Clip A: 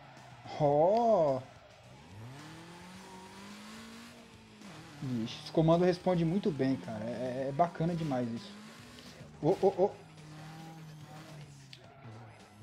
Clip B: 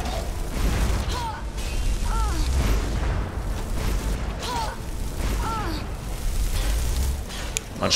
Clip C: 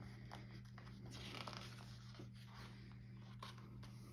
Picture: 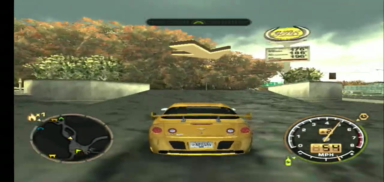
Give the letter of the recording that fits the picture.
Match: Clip A